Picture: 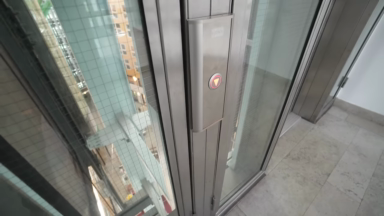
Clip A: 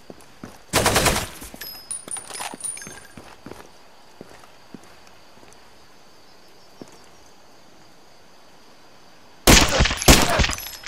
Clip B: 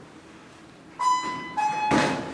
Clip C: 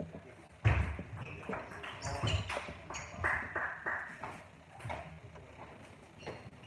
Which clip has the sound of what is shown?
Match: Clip B